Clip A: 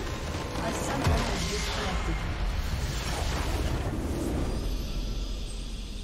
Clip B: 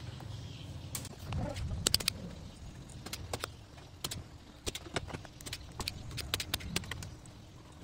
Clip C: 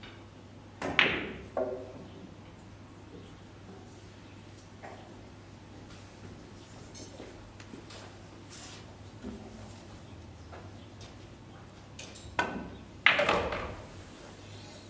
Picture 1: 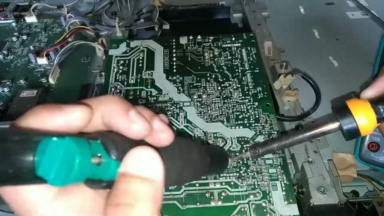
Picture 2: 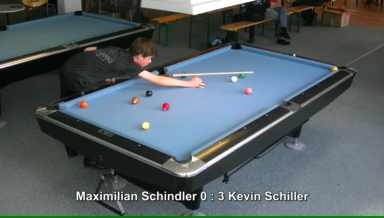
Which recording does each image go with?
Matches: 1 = B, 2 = C